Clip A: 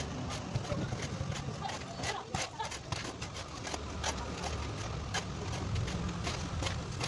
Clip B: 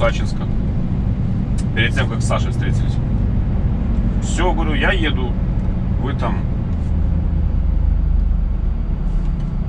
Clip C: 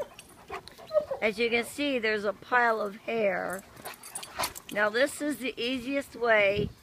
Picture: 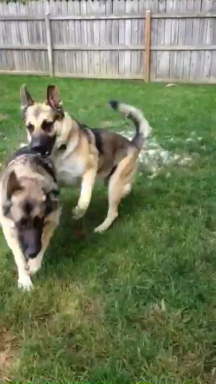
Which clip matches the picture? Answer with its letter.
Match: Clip C